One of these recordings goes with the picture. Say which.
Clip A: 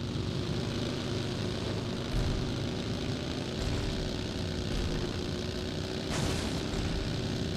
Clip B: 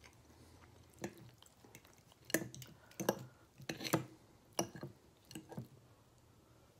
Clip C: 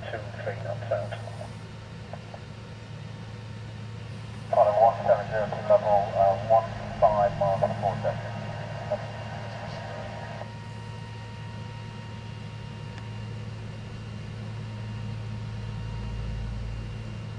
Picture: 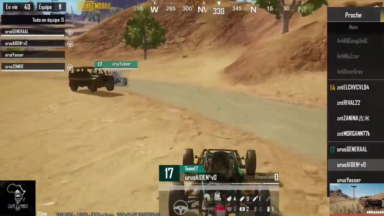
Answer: A